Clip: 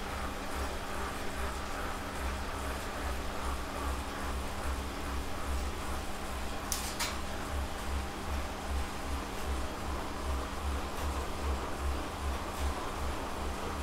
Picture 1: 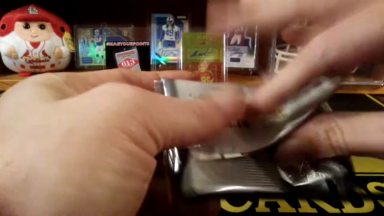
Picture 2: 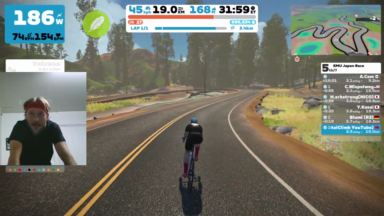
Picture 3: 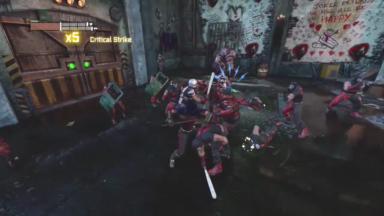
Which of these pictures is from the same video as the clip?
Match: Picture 2